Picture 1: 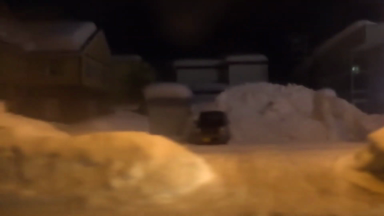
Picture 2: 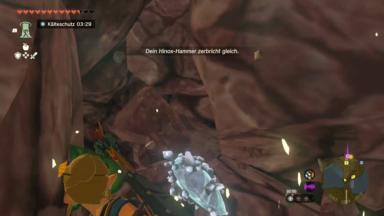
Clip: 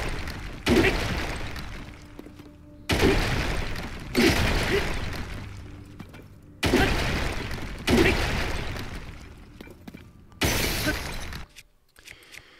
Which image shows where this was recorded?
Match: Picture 2